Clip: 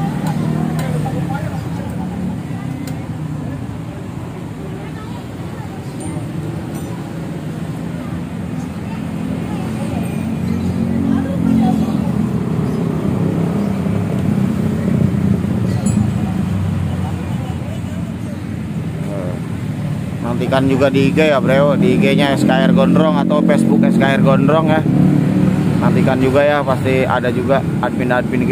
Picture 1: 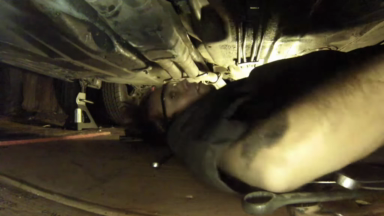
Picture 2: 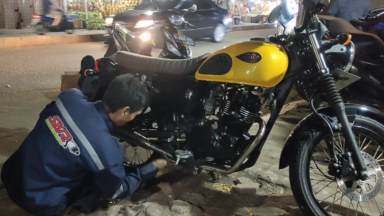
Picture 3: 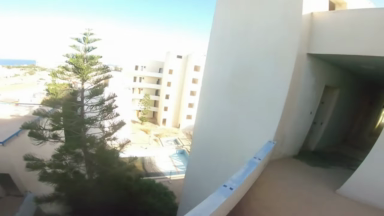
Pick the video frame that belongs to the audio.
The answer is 2